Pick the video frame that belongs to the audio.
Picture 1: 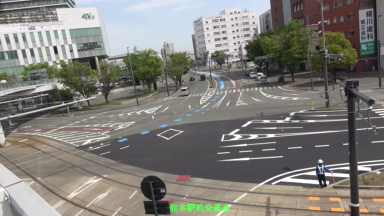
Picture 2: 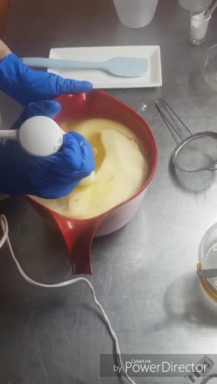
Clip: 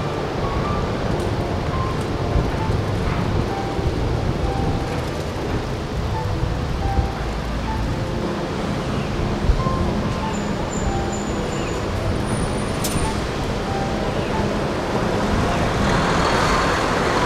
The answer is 1